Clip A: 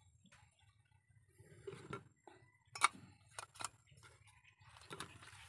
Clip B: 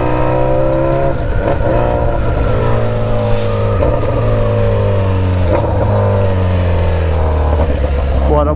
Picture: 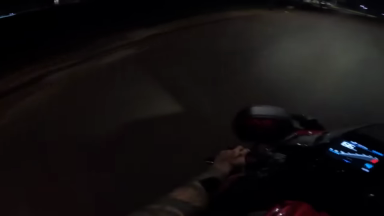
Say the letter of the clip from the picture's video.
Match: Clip B